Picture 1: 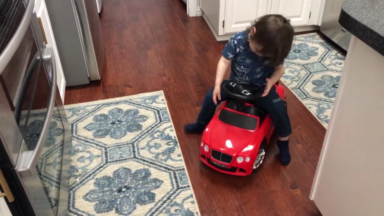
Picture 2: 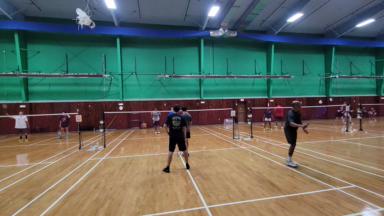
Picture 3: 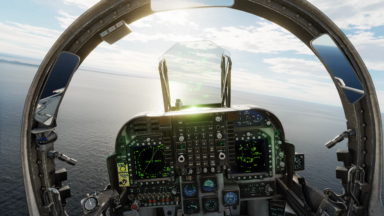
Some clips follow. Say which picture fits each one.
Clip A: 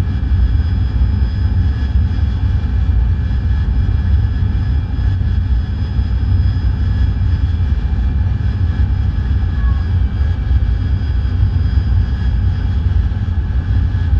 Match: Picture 3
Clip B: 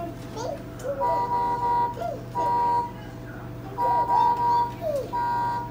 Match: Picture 1